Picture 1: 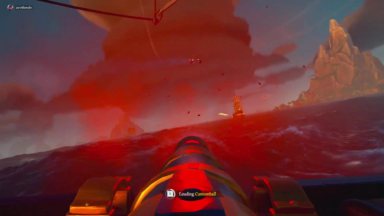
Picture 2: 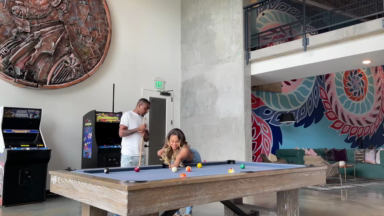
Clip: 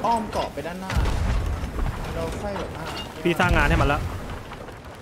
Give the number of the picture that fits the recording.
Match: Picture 1